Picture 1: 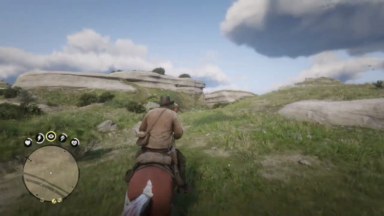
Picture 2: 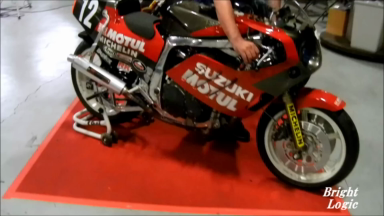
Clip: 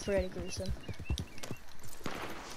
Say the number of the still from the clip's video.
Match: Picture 1